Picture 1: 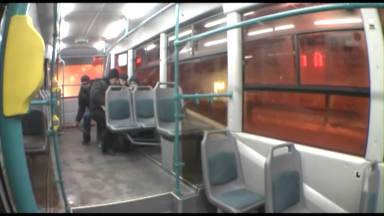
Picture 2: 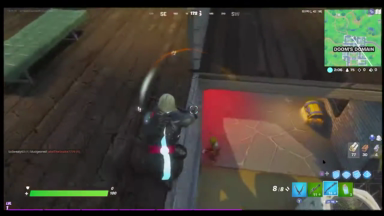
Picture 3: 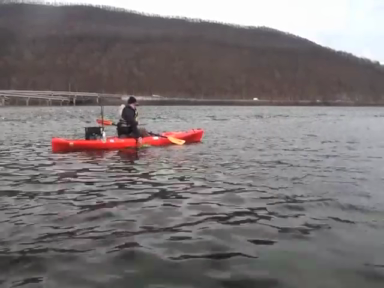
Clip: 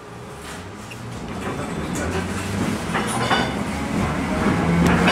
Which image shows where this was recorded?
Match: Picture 1